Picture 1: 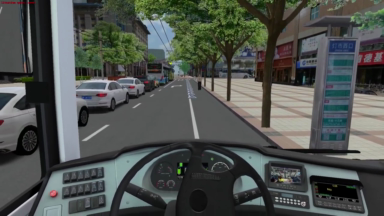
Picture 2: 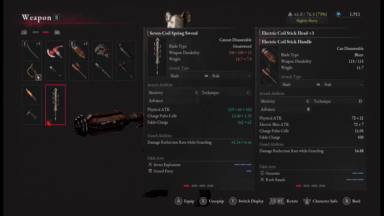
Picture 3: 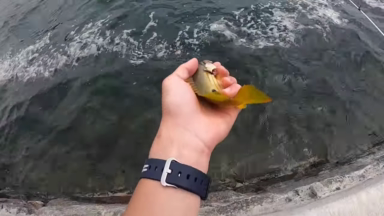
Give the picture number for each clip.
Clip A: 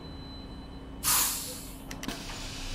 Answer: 1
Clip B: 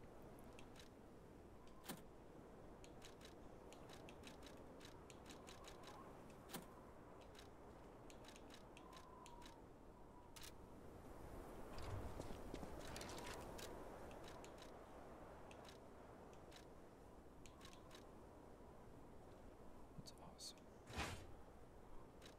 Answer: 2